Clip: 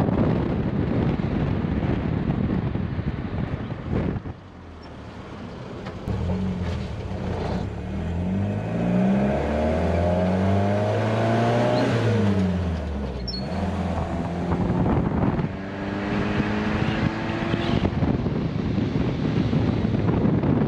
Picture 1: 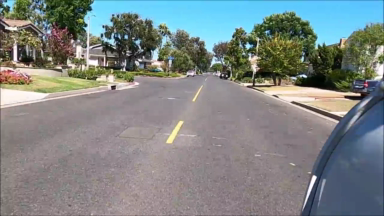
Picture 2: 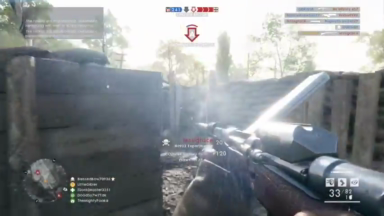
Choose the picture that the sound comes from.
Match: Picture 1